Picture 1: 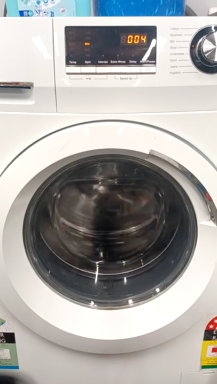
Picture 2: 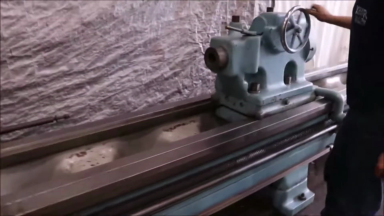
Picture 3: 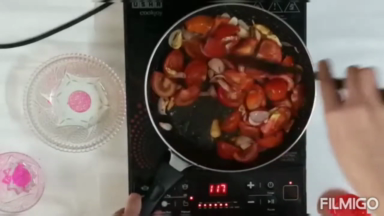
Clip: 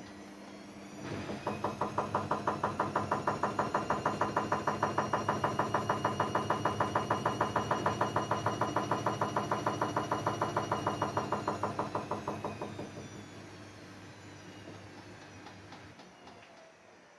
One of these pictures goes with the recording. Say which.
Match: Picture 1